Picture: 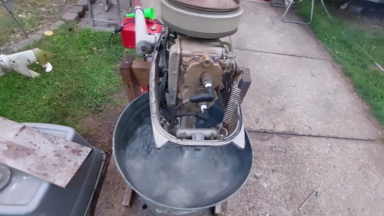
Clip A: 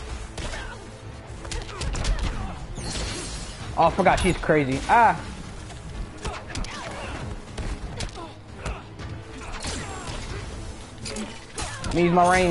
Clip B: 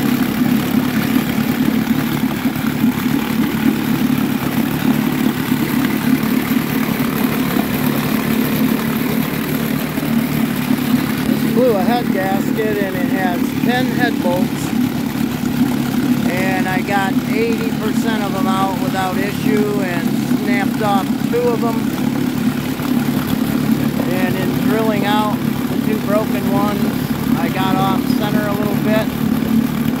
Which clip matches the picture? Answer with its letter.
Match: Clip B